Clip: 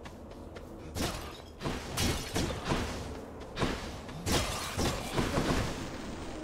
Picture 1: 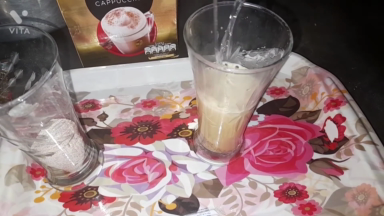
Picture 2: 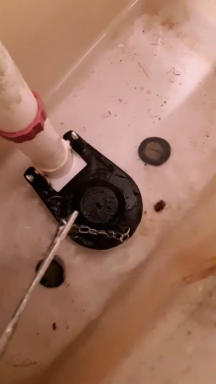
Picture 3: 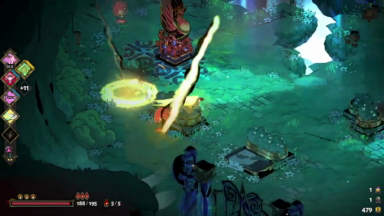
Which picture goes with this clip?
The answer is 3